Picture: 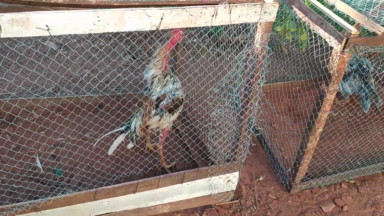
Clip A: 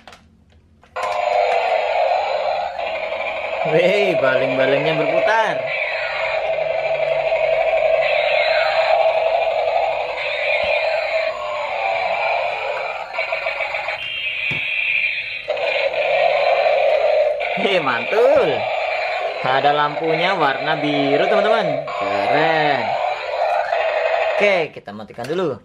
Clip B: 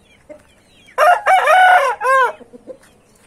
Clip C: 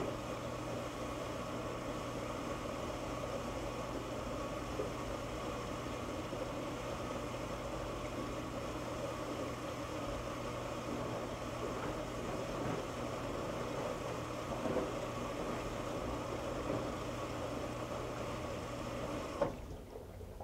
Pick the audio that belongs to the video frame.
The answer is B